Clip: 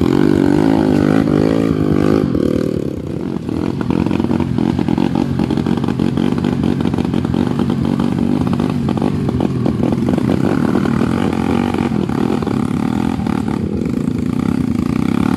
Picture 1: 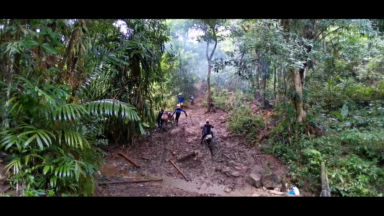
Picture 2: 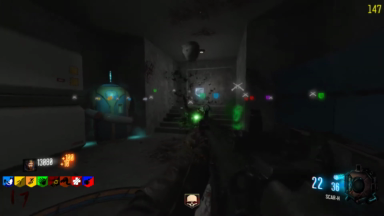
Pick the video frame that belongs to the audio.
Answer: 1